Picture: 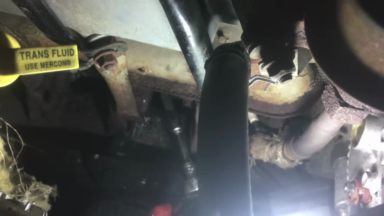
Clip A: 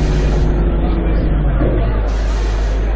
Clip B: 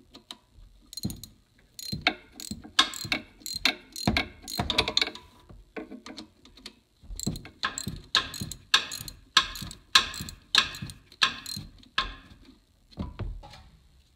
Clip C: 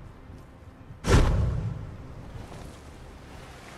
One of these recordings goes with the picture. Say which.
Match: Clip B